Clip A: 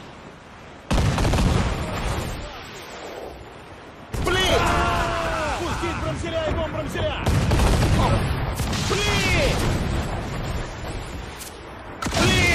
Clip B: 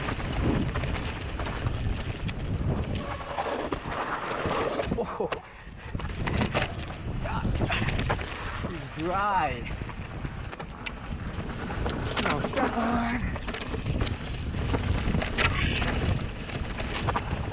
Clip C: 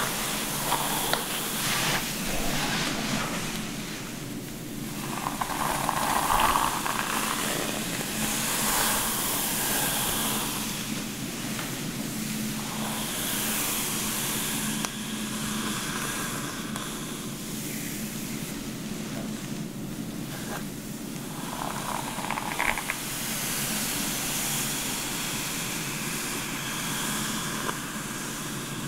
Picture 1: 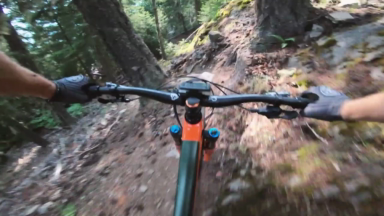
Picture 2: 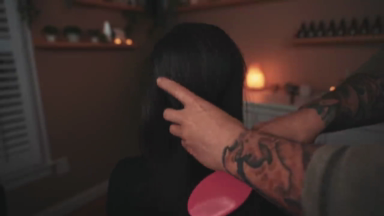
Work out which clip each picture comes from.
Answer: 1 B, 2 C